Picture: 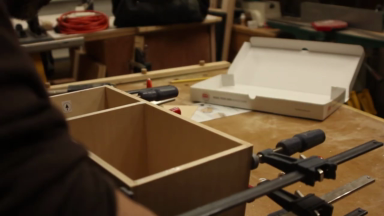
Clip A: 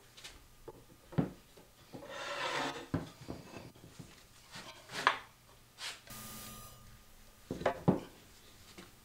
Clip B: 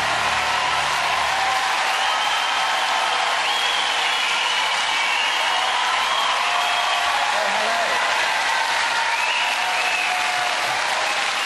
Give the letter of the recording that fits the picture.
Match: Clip A